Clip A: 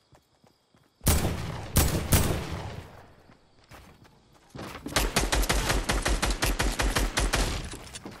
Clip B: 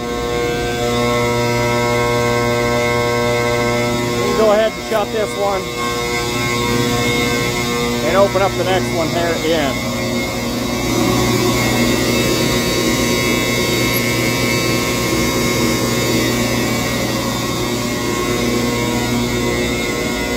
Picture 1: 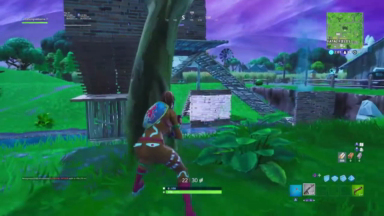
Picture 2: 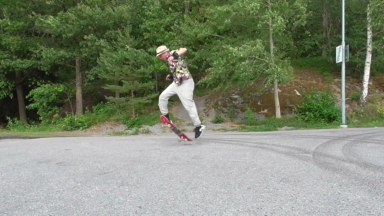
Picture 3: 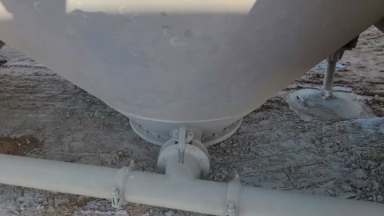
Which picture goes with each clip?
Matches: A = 1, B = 3